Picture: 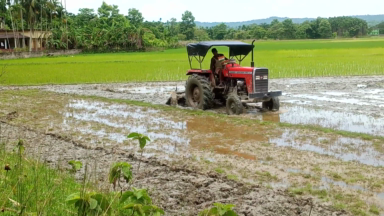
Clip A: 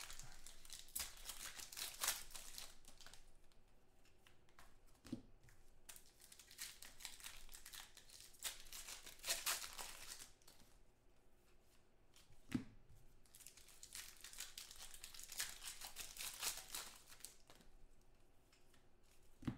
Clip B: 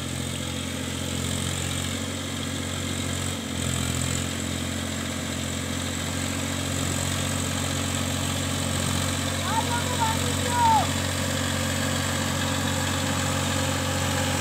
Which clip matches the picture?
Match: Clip B